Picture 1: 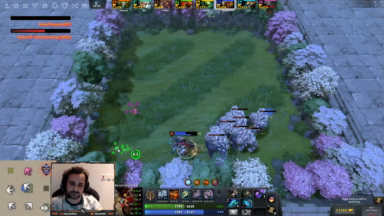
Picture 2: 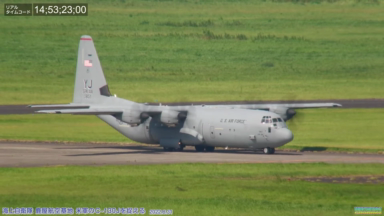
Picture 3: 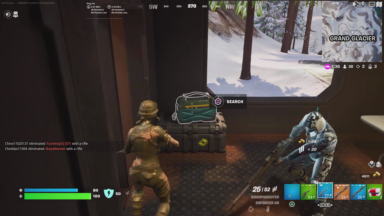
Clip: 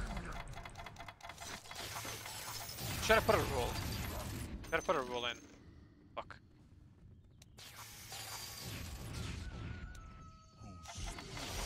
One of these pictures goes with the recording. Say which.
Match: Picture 1